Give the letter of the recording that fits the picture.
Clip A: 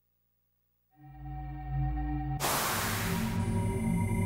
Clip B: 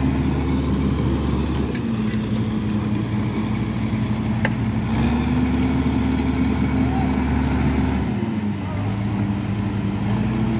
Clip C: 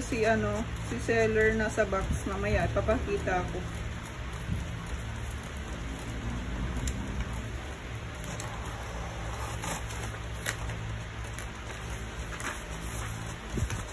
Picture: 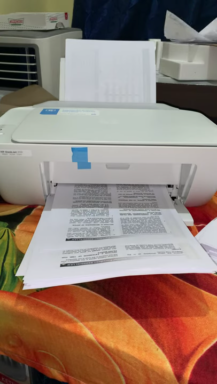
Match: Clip C